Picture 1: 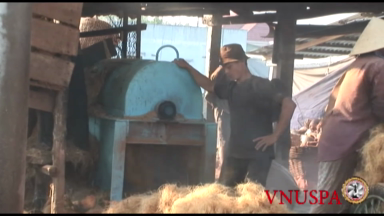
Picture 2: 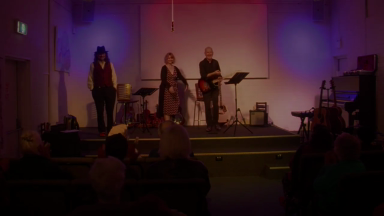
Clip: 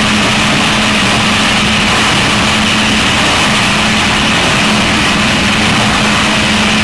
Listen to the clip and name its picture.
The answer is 1